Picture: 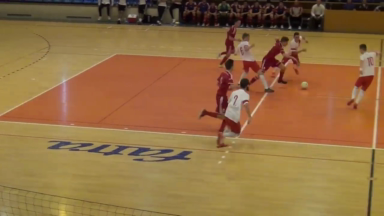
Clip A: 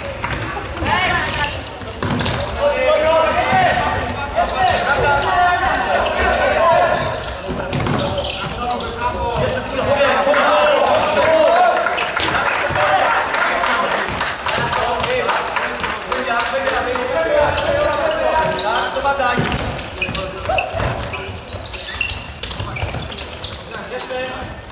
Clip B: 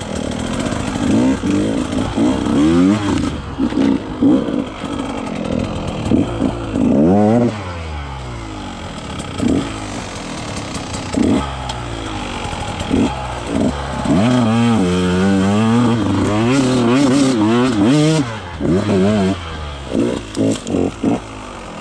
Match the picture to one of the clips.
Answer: A